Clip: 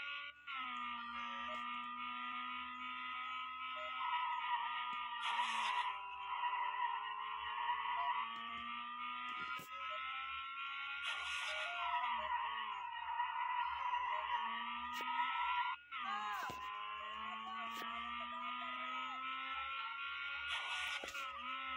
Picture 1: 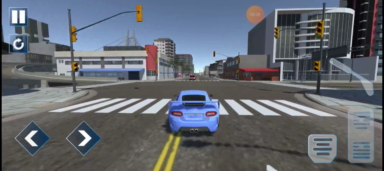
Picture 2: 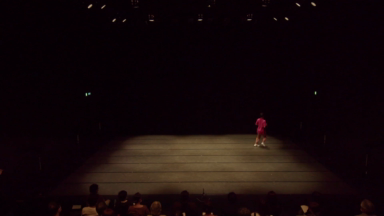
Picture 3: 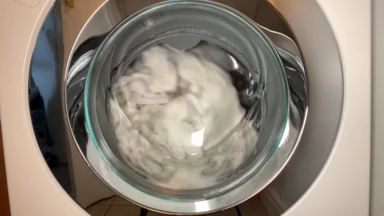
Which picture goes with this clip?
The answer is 1